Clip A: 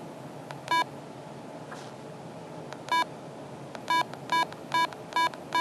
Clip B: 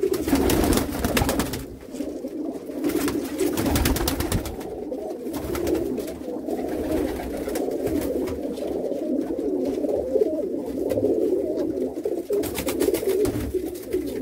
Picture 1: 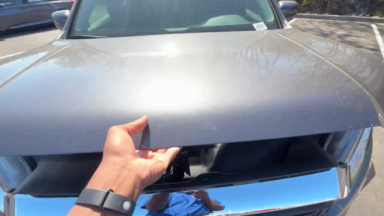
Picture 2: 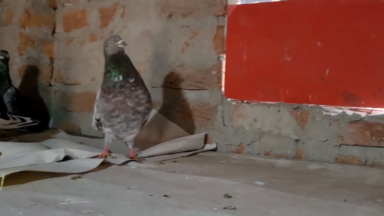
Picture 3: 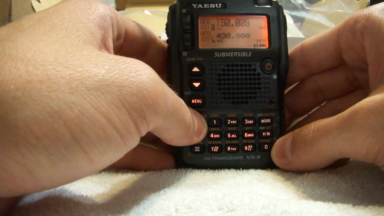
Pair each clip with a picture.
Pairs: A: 3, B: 2